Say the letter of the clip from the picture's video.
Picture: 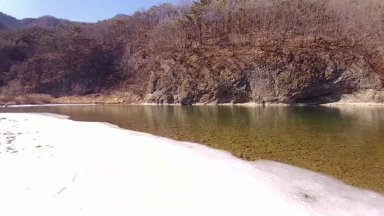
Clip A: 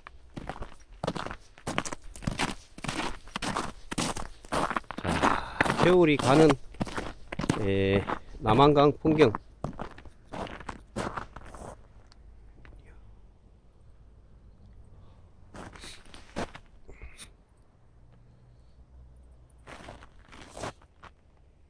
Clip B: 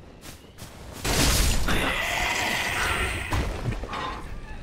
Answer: A